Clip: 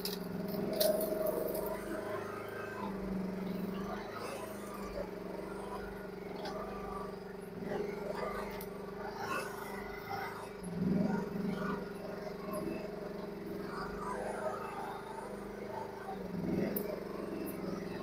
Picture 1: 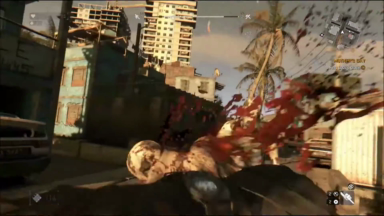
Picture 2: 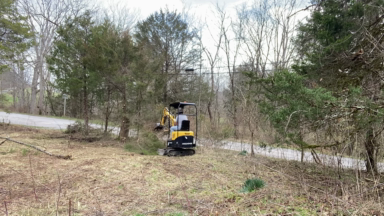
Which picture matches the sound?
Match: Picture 2